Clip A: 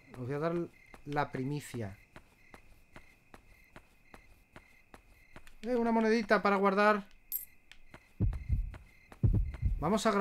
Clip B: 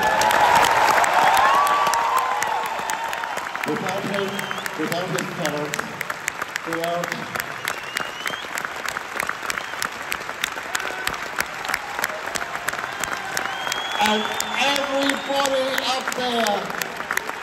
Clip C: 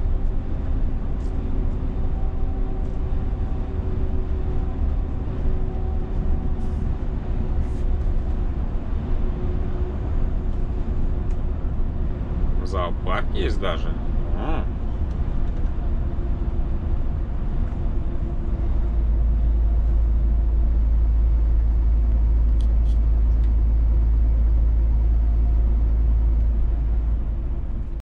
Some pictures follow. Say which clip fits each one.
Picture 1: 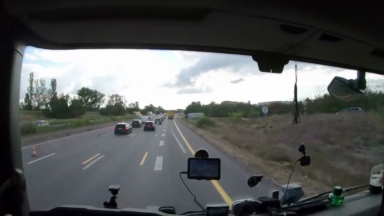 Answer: C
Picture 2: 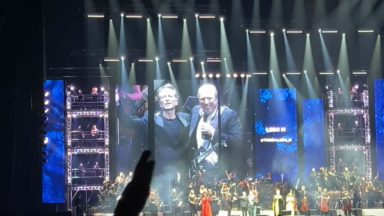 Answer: B